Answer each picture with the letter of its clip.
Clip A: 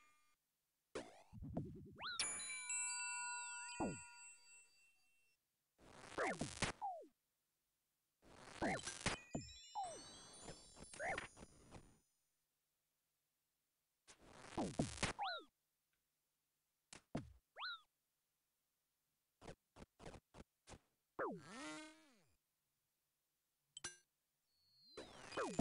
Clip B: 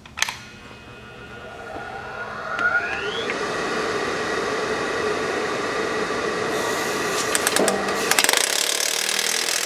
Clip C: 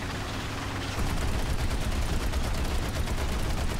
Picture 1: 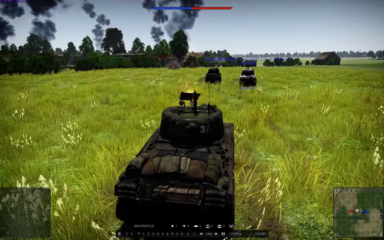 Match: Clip C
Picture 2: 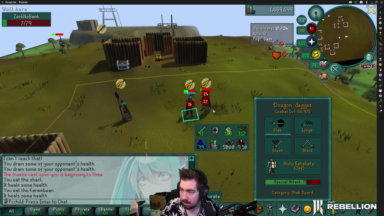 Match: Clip A